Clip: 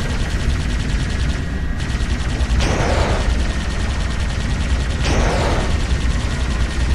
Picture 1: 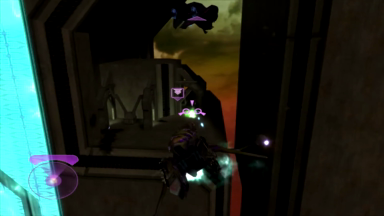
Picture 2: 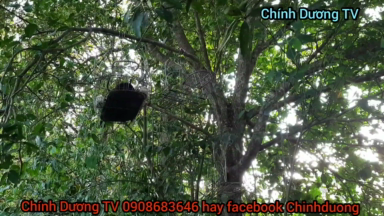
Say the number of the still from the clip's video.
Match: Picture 1